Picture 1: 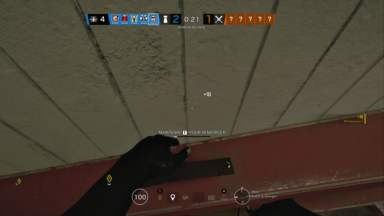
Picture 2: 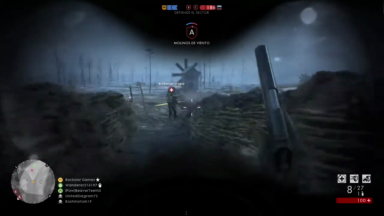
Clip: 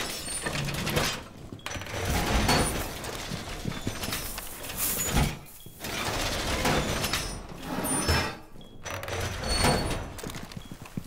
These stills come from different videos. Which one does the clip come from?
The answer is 1